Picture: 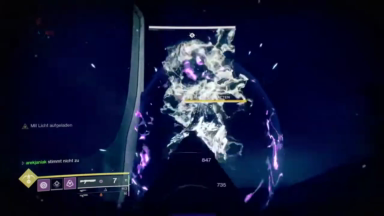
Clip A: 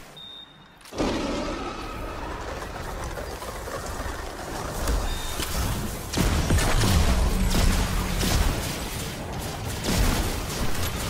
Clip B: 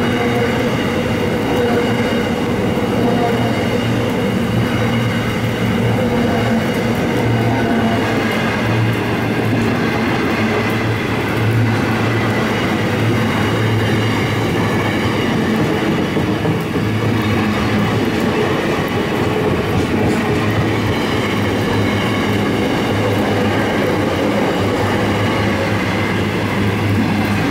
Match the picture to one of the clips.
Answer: A